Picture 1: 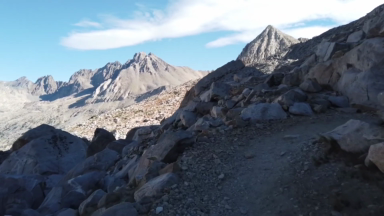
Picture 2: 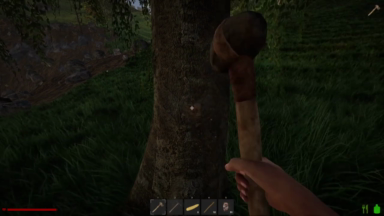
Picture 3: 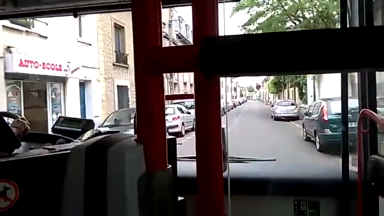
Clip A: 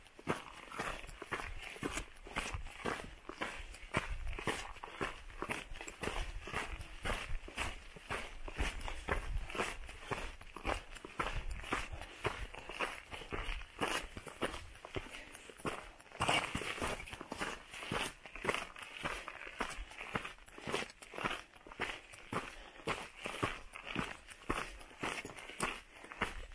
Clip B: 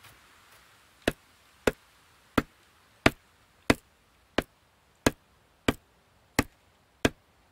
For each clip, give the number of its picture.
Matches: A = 1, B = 2